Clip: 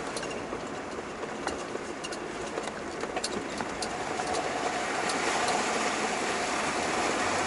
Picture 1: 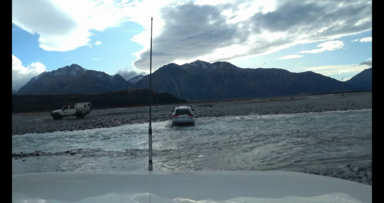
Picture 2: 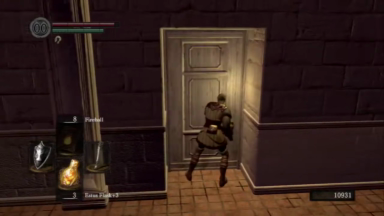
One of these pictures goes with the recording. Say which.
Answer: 1